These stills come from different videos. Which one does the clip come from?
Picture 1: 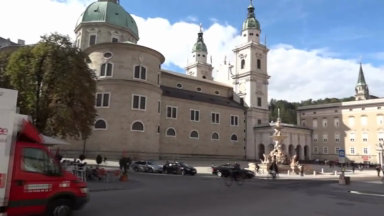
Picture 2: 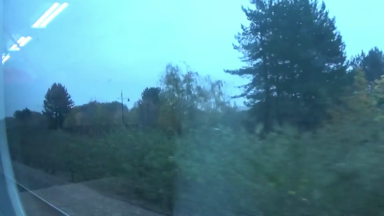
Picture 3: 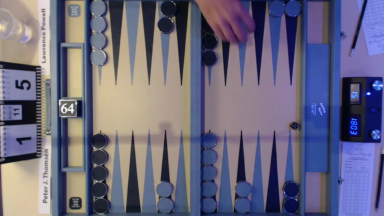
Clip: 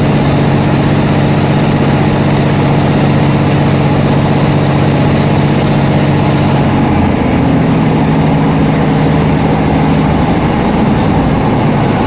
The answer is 2